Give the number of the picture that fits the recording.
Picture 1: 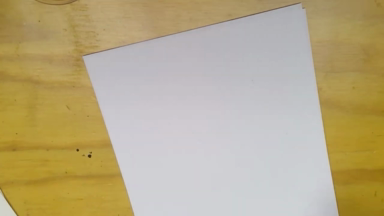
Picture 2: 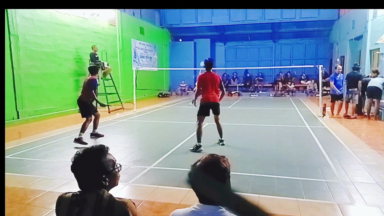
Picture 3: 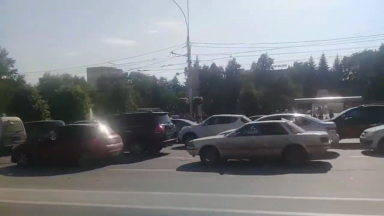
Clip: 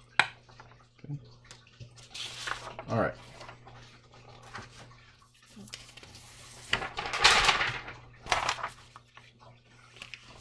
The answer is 1